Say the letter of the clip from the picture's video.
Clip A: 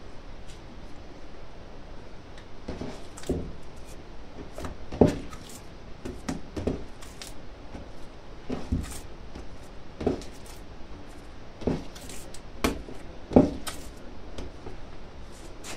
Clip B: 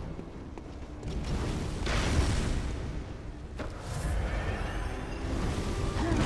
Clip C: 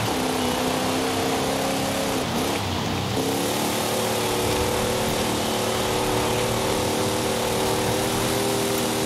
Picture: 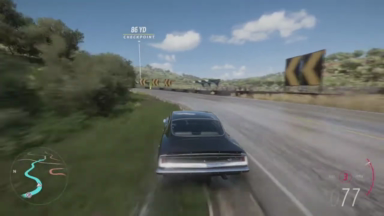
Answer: C